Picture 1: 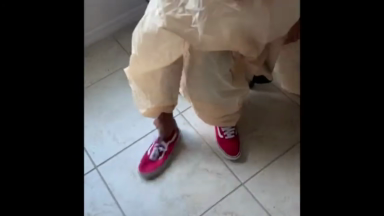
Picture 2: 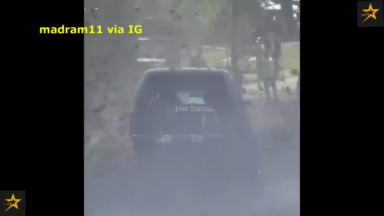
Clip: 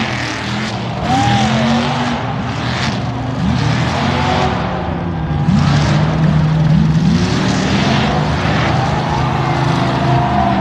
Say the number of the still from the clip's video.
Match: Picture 2